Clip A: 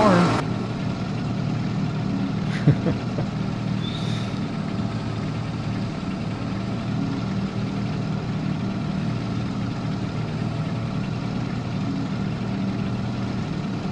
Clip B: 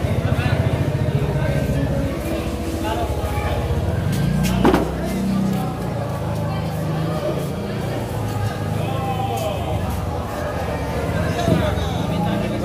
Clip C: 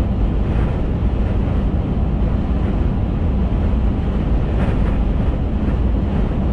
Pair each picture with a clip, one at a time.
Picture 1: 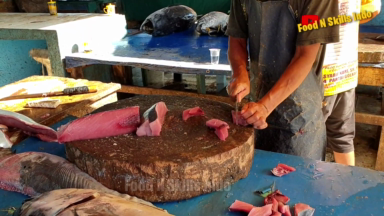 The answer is B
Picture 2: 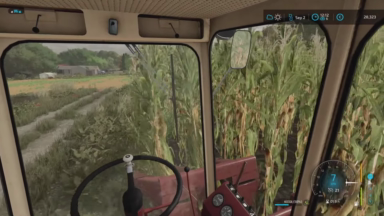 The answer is A